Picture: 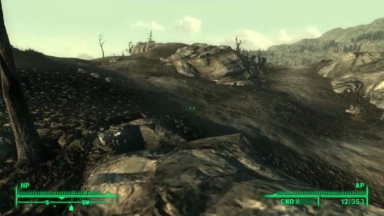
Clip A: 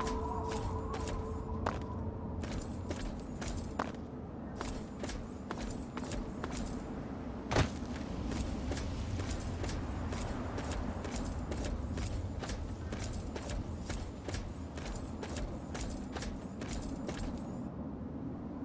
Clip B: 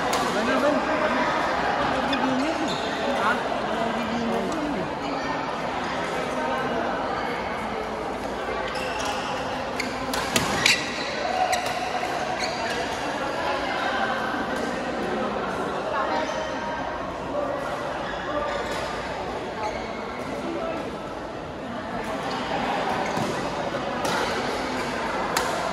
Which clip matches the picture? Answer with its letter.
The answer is A